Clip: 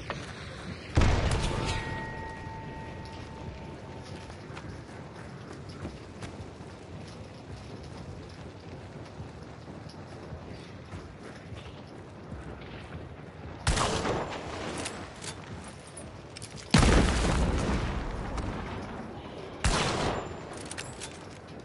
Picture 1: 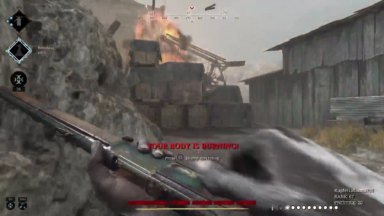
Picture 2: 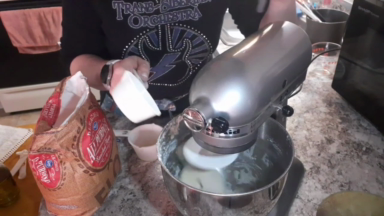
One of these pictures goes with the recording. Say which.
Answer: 1